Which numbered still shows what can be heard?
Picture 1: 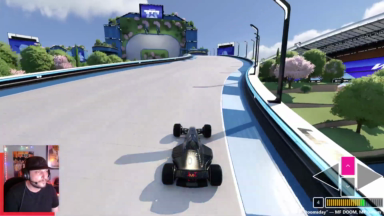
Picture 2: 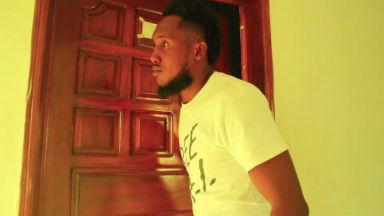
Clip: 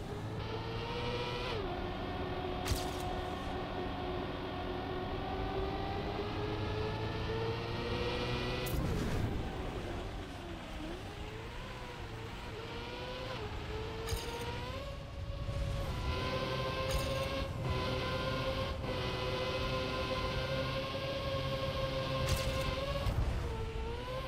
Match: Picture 1